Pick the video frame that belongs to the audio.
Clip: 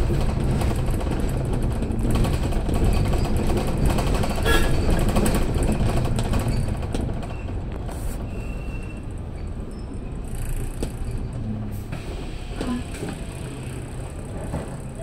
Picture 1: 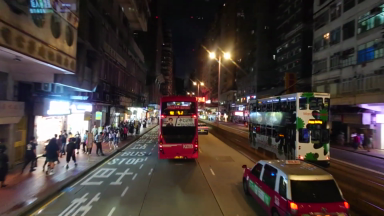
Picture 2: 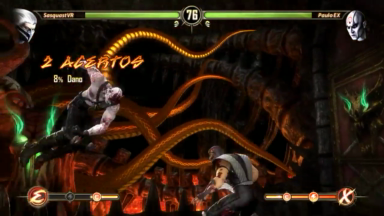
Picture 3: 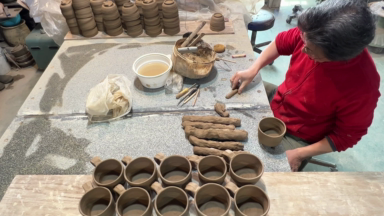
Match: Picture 1